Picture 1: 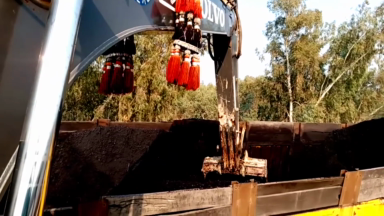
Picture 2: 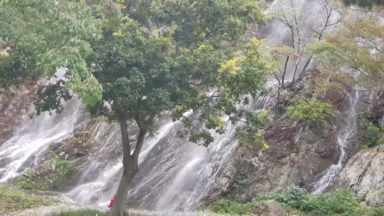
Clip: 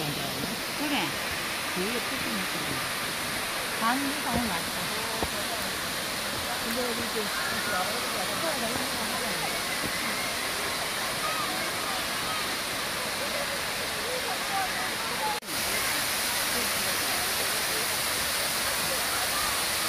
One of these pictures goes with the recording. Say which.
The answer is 2